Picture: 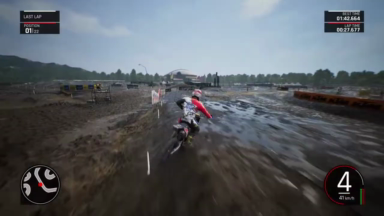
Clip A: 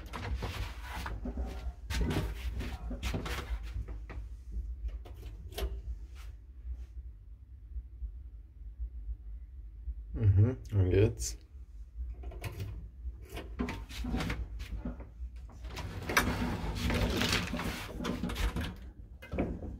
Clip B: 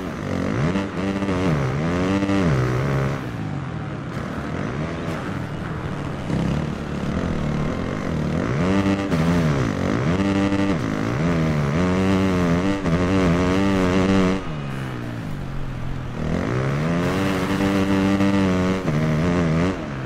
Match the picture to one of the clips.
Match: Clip B